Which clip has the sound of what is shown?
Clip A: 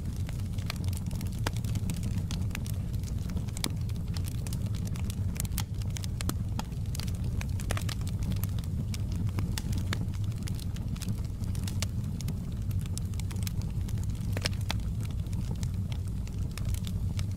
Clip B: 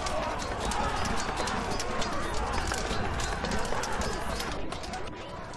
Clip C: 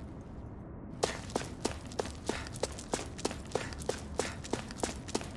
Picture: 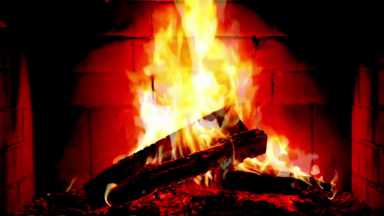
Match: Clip A